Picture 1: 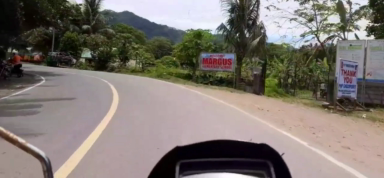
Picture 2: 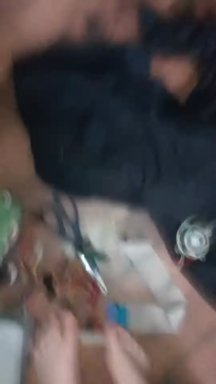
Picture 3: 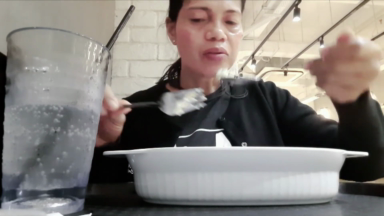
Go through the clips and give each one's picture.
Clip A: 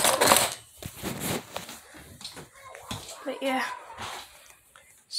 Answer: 2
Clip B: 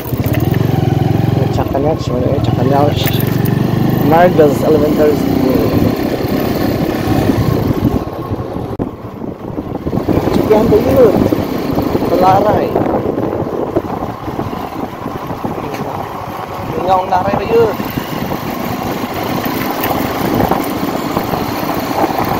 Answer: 1